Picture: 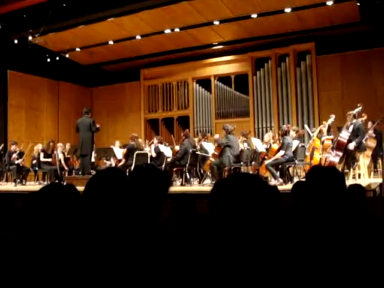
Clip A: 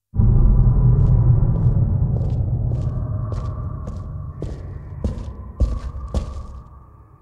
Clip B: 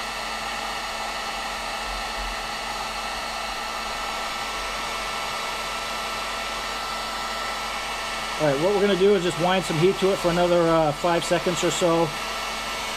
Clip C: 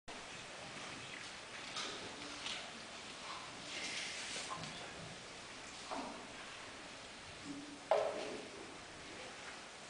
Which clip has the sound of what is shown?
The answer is C